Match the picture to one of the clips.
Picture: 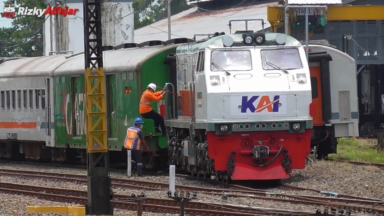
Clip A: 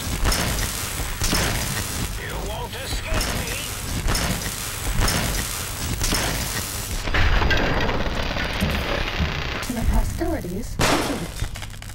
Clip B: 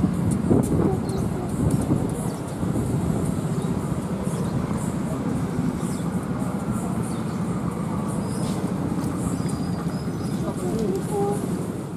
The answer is B